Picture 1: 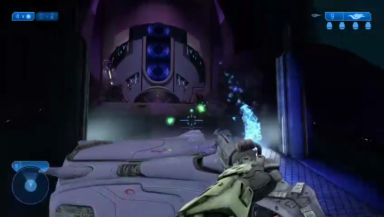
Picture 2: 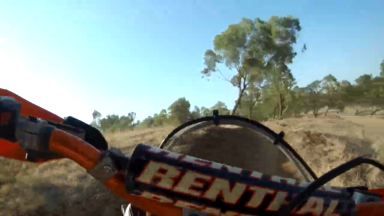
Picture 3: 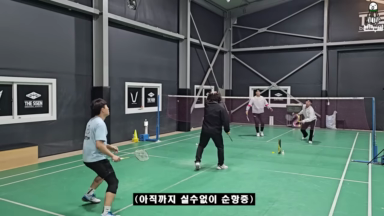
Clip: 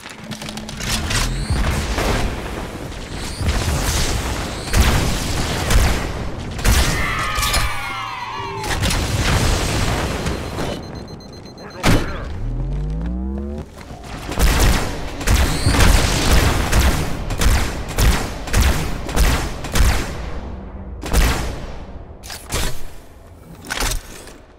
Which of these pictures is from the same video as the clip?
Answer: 1